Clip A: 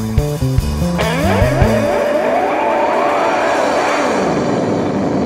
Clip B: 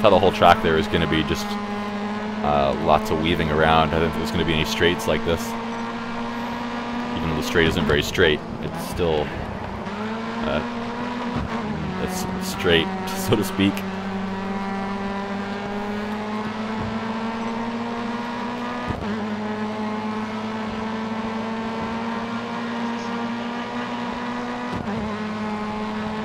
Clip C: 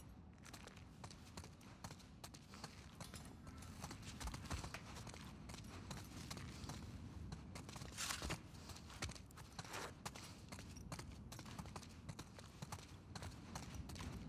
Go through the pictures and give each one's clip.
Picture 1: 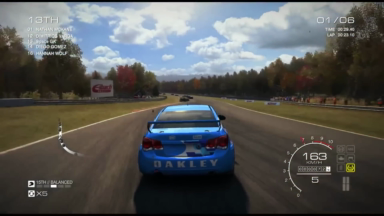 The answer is B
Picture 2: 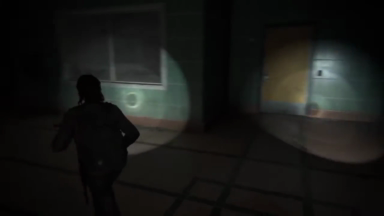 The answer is C